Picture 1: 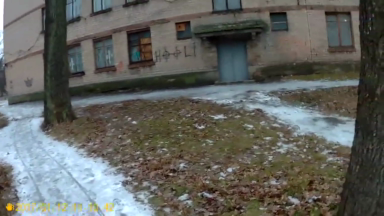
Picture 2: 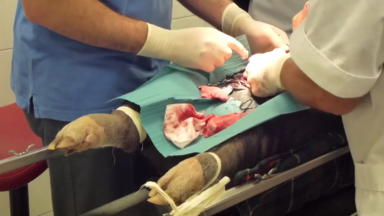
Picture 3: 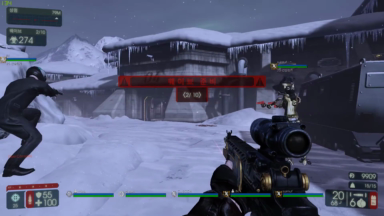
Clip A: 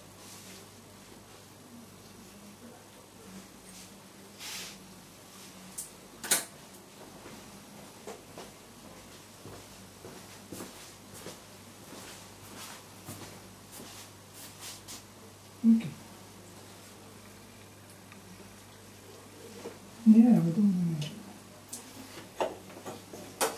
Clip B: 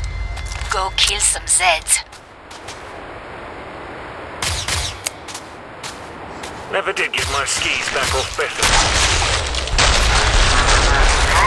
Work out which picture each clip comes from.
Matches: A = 2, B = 3